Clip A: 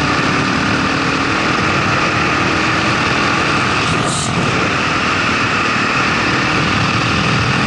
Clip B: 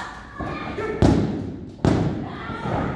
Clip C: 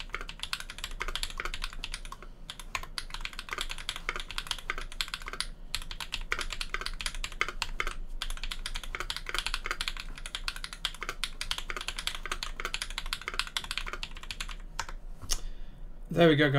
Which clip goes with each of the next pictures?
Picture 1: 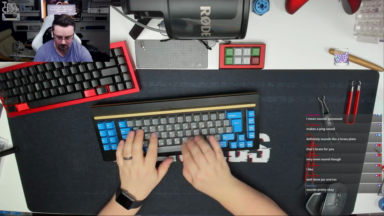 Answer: C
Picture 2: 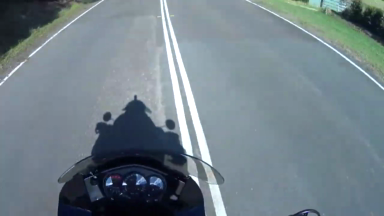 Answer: A